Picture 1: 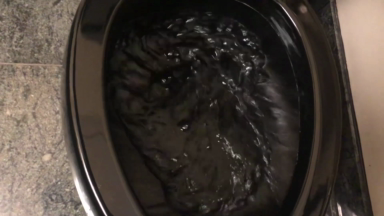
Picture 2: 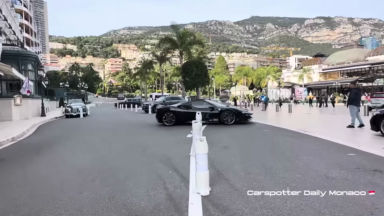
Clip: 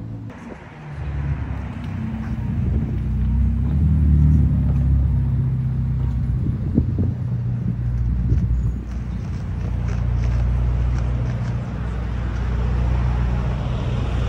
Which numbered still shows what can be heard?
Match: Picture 2